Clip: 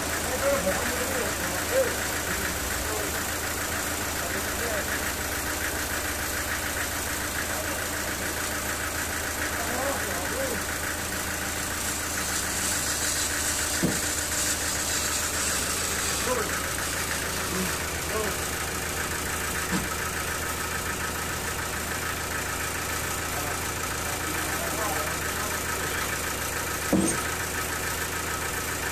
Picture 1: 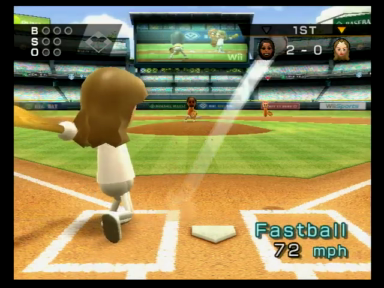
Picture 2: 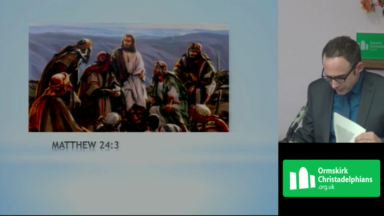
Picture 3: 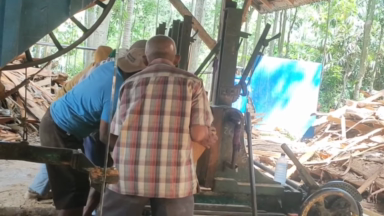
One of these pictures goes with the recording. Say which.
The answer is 3